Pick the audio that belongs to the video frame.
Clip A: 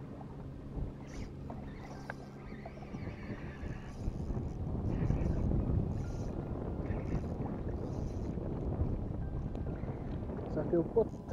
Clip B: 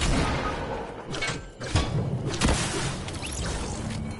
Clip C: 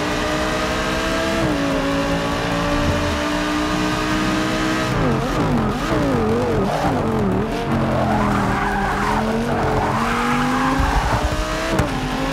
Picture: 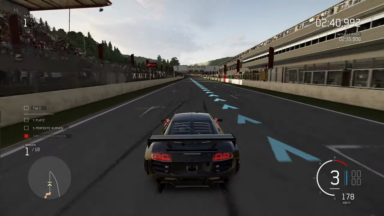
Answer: C